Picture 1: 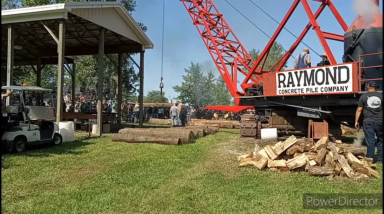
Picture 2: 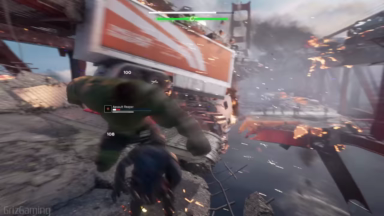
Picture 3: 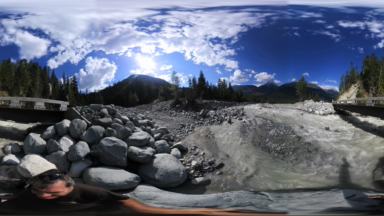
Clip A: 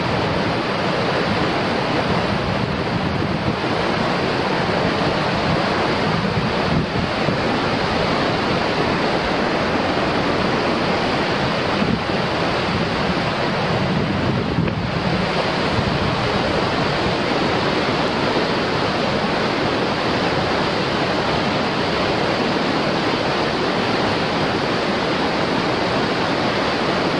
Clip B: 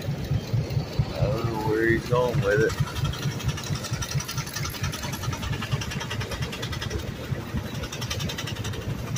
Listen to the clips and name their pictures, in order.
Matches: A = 3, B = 1